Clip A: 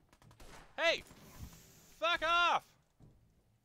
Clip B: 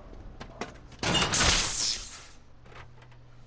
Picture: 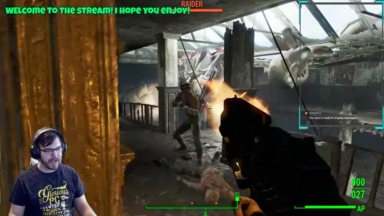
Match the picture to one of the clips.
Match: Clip A